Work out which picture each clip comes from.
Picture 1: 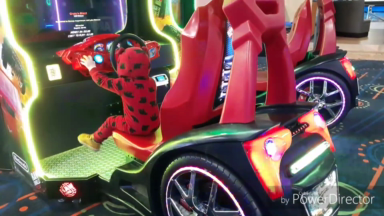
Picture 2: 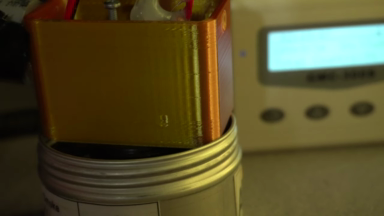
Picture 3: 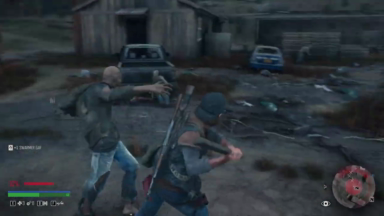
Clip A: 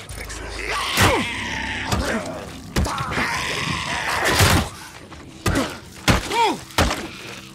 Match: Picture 3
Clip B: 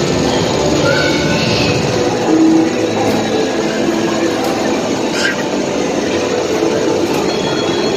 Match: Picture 1